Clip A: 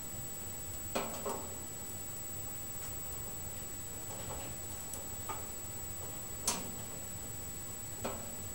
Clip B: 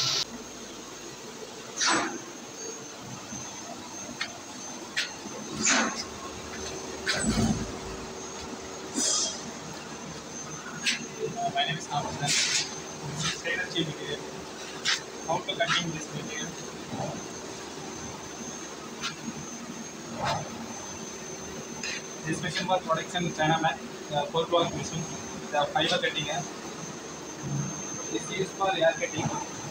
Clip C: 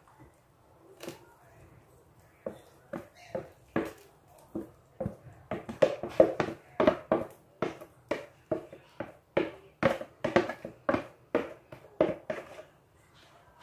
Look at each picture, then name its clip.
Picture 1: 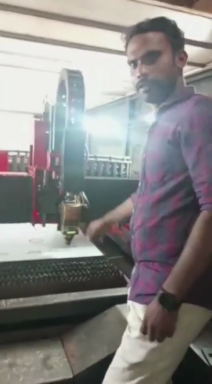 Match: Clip B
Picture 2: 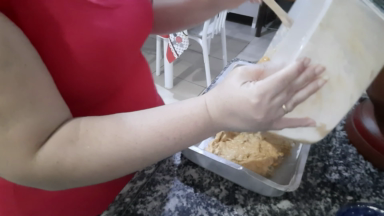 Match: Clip C